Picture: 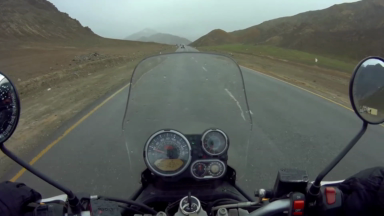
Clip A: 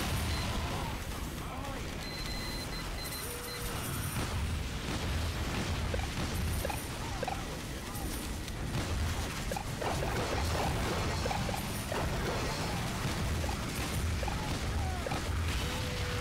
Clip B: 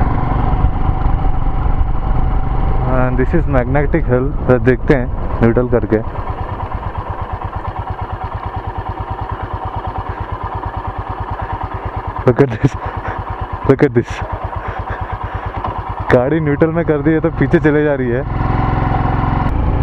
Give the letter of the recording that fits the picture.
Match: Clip B